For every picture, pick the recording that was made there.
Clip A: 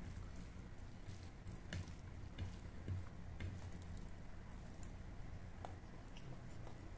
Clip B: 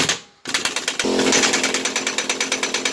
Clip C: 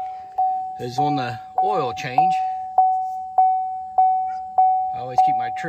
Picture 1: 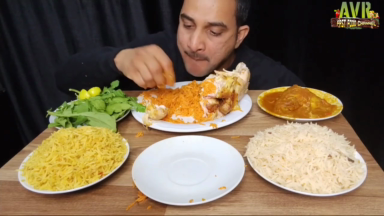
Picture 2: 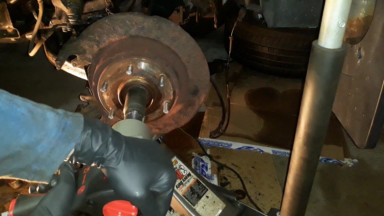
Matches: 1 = A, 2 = B